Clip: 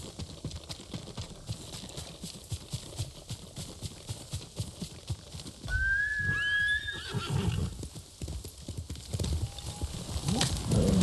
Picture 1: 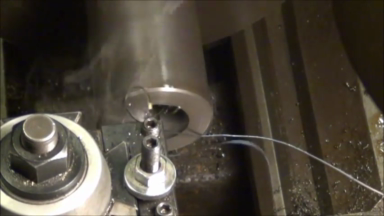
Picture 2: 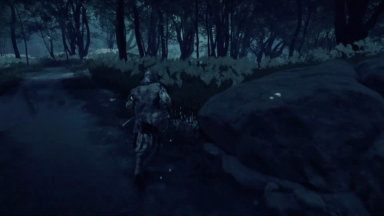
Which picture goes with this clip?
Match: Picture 2